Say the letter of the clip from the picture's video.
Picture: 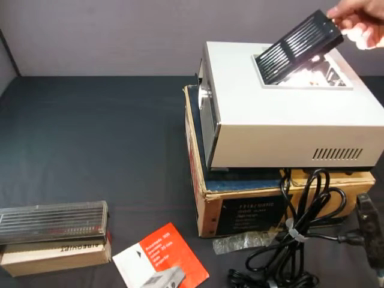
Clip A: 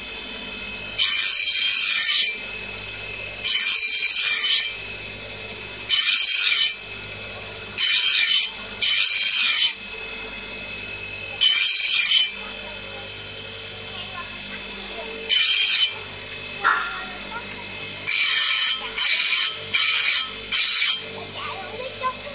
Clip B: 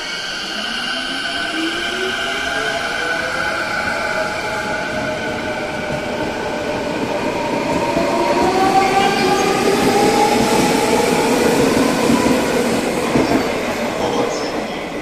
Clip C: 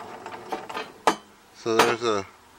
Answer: C